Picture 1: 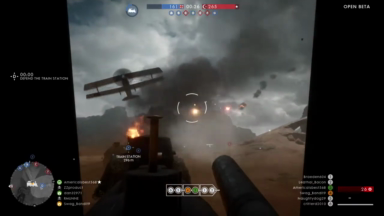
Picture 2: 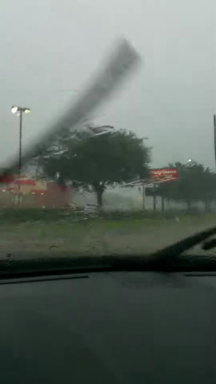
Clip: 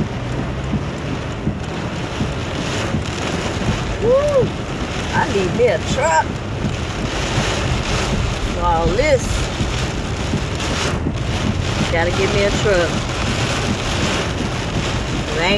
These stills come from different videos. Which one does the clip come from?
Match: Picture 2